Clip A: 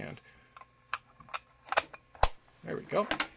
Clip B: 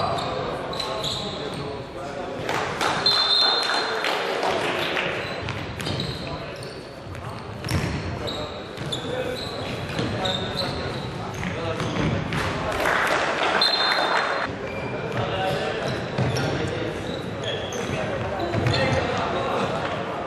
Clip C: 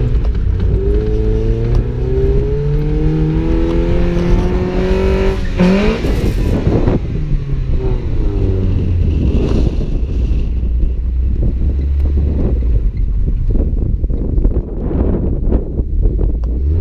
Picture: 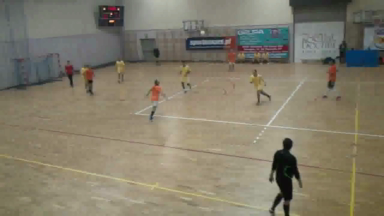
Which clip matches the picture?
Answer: B